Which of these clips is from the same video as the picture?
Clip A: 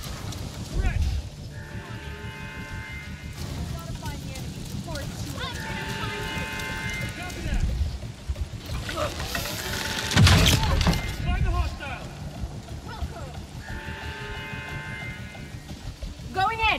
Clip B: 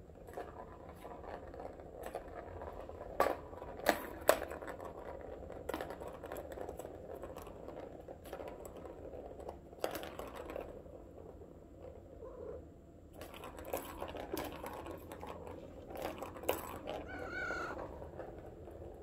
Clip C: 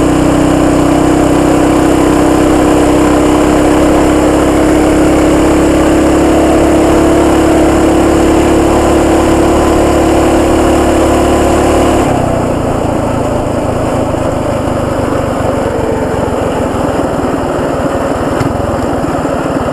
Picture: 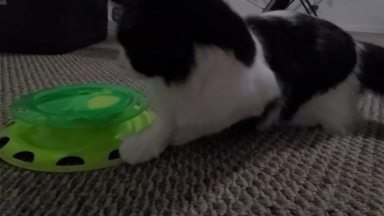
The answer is B